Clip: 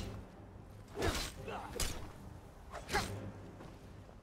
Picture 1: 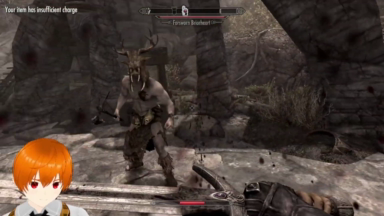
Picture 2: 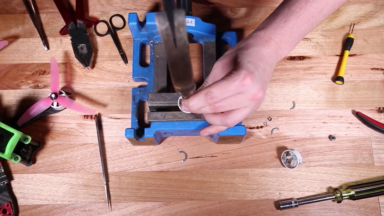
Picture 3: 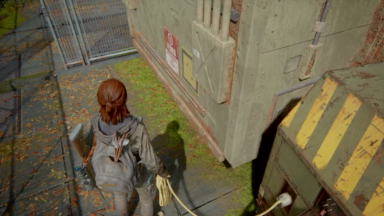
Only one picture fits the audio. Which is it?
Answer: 1